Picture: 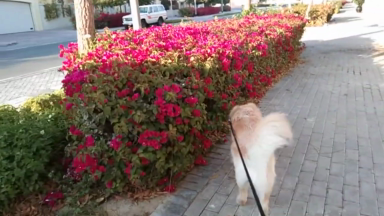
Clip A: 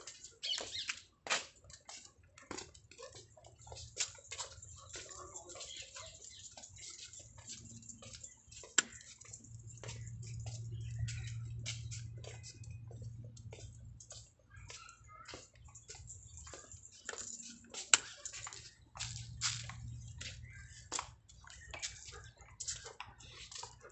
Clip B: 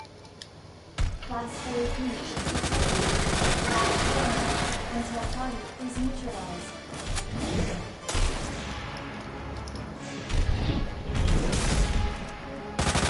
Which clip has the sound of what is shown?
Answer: A